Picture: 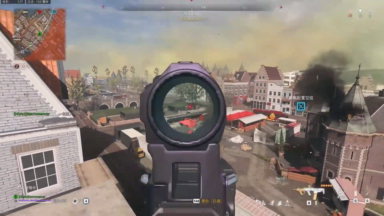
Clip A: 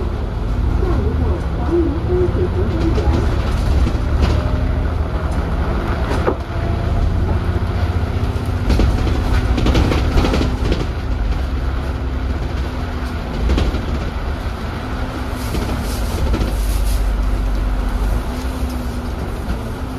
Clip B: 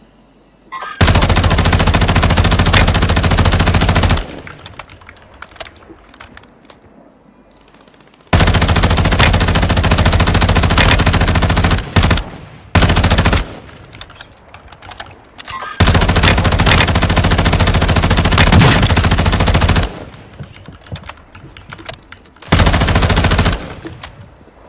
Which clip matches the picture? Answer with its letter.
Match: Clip B